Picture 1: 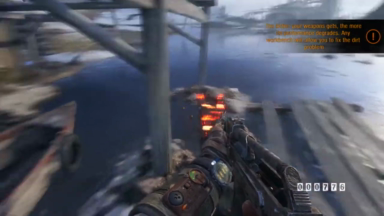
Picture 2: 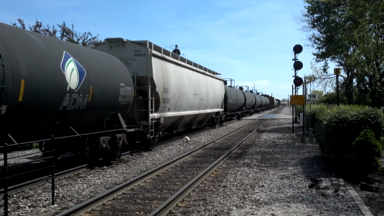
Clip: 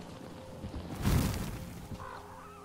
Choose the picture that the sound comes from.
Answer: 1